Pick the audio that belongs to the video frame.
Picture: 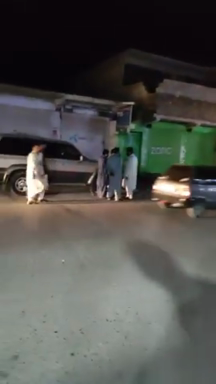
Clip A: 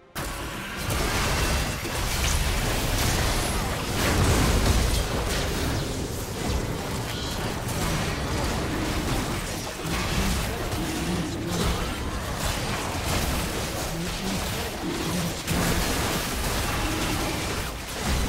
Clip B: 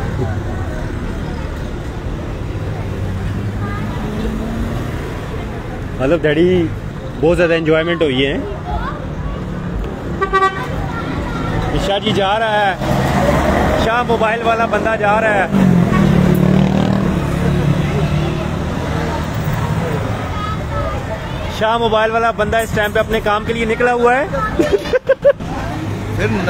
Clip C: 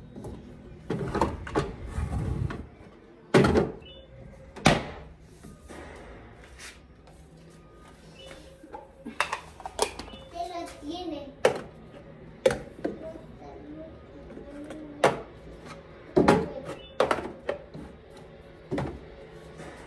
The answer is B